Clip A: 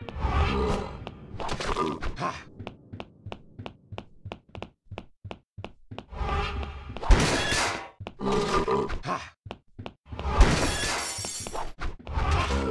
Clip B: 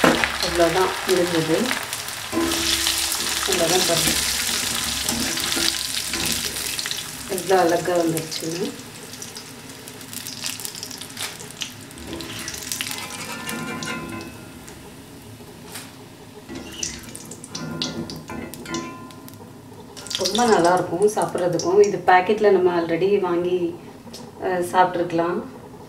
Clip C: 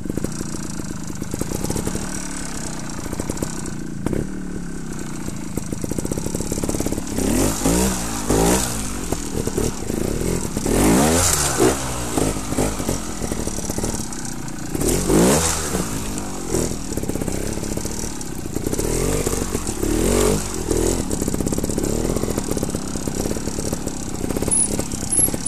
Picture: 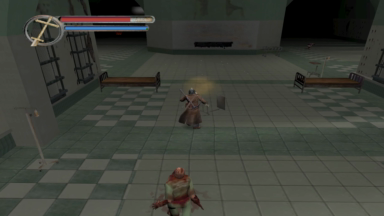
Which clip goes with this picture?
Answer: A